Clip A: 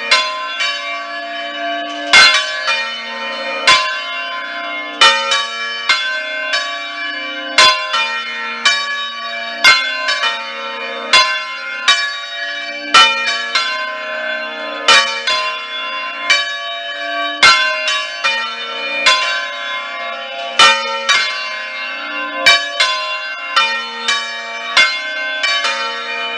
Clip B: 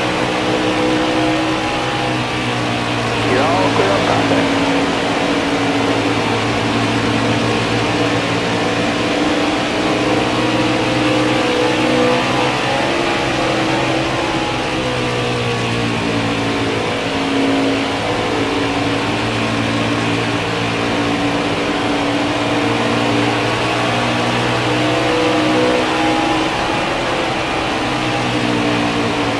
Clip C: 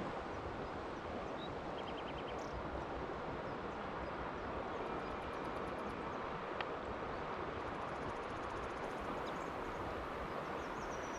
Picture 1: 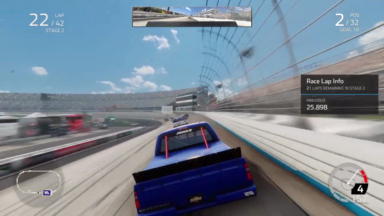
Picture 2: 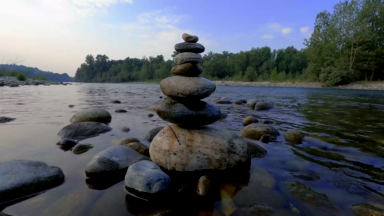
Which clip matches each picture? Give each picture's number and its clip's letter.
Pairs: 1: B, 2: C